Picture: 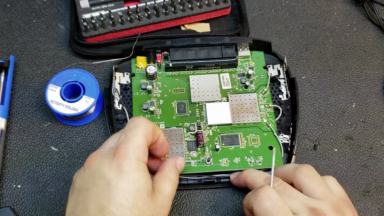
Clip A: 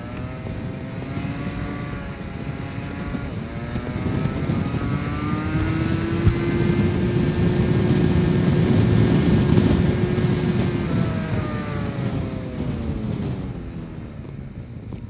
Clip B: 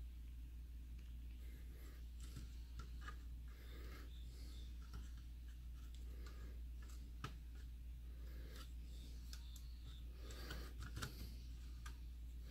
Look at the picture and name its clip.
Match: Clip B